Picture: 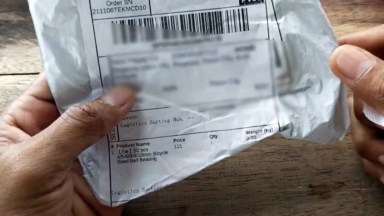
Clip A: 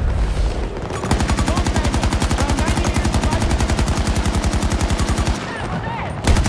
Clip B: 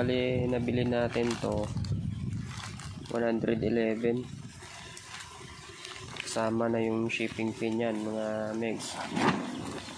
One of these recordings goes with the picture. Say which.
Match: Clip B